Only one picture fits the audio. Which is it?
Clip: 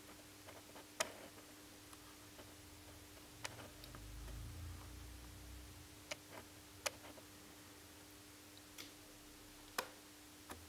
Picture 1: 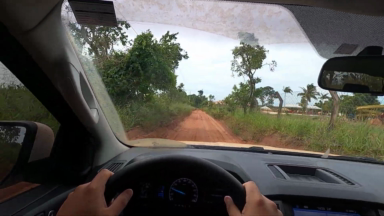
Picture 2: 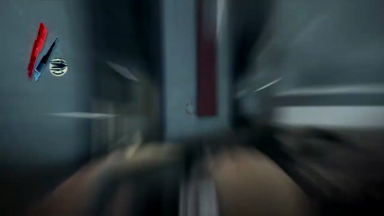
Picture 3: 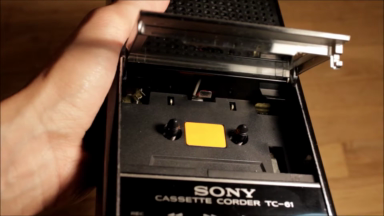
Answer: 3